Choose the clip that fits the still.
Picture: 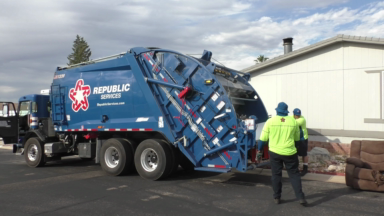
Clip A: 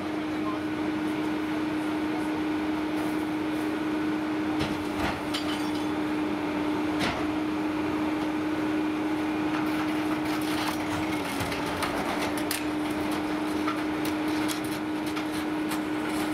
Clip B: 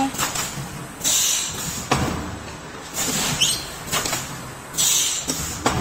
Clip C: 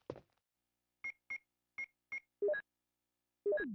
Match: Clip A